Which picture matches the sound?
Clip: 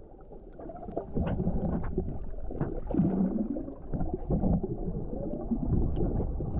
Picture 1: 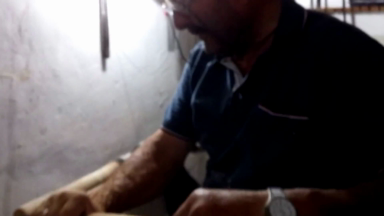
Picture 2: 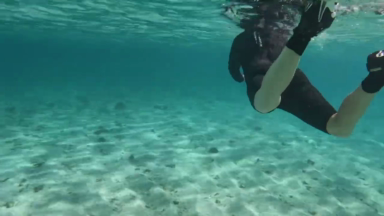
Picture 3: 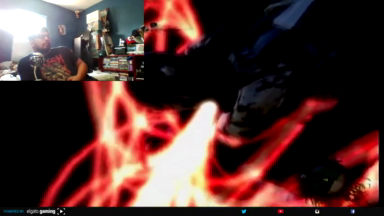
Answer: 2